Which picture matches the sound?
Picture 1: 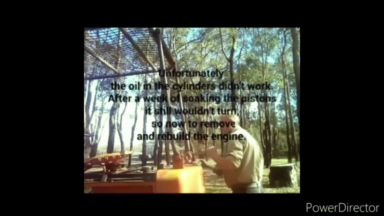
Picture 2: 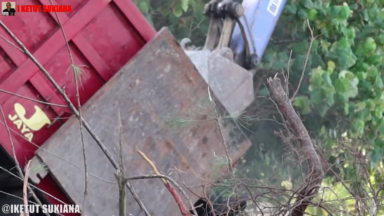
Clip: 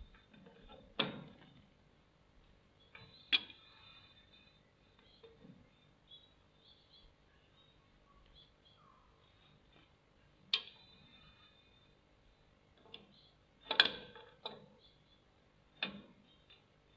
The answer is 1